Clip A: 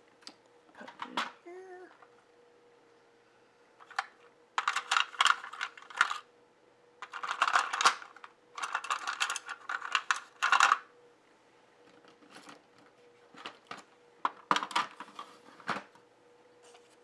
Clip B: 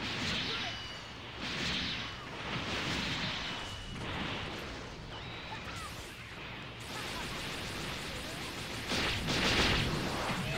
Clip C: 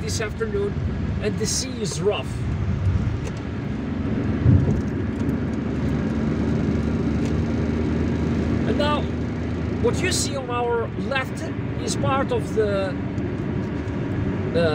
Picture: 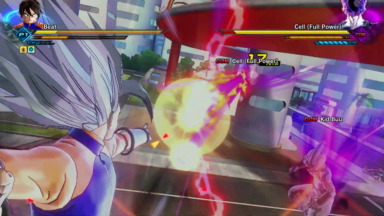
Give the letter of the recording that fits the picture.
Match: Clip B